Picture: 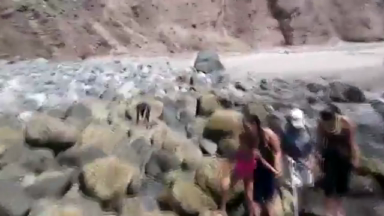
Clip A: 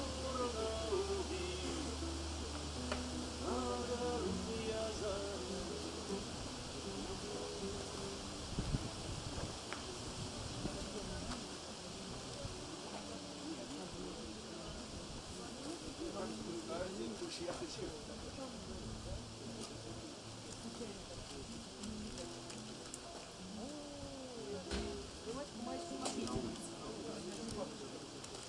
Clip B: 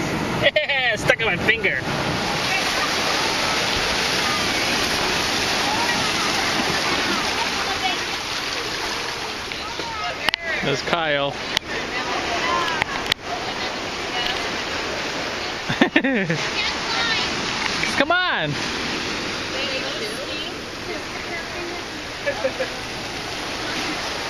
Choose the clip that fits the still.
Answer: B